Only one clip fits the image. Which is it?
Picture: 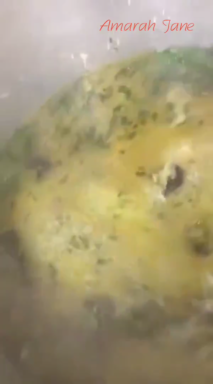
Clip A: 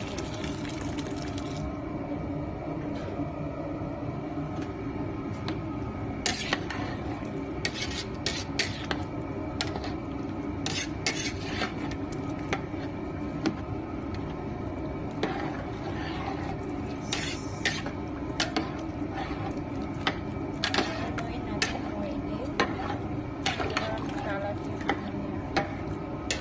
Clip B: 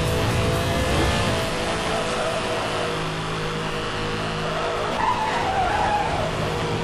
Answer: A